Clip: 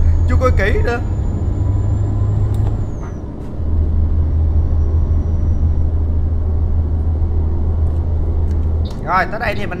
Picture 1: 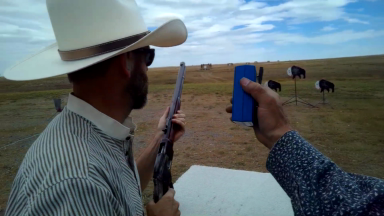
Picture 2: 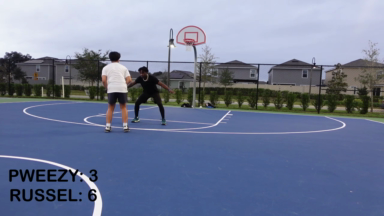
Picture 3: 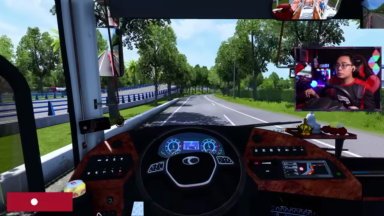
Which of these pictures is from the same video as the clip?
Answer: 3